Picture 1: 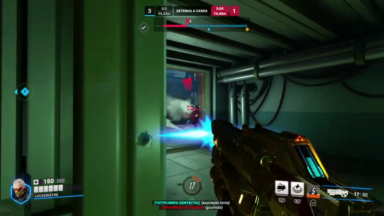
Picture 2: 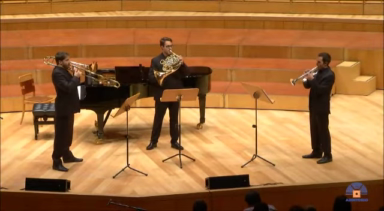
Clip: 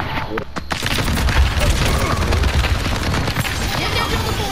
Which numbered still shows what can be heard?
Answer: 1